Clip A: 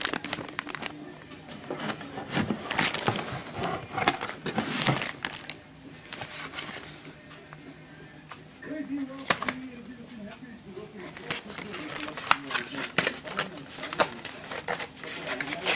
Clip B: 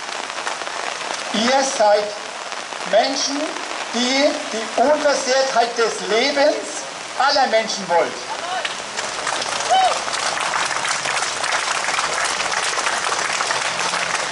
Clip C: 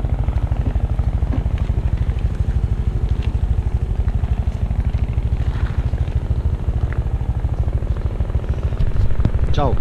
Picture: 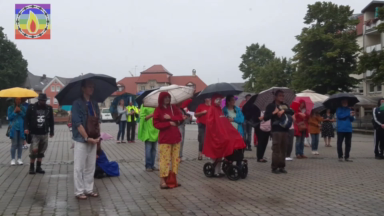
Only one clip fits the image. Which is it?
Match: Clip B